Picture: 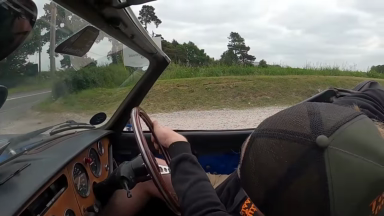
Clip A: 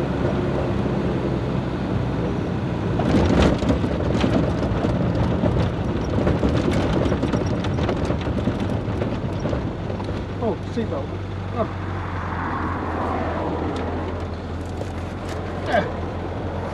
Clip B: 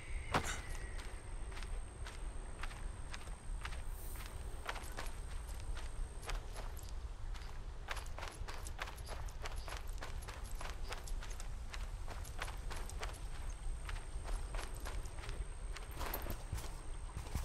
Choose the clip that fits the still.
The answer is A